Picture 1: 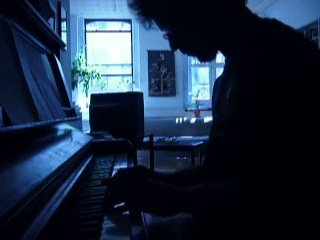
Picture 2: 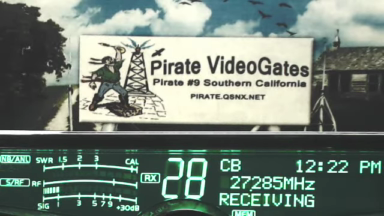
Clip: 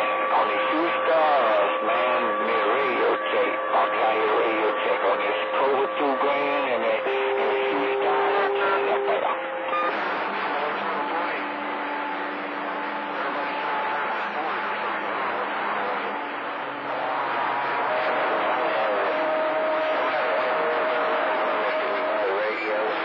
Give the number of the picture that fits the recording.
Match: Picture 2